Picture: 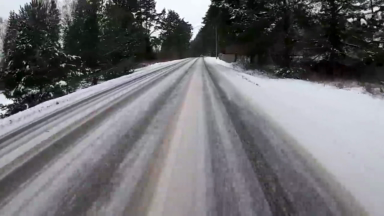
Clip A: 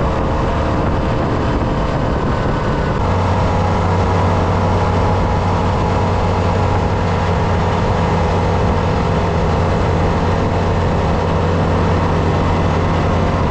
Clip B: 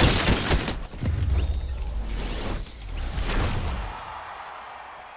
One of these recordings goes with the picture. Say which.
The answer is A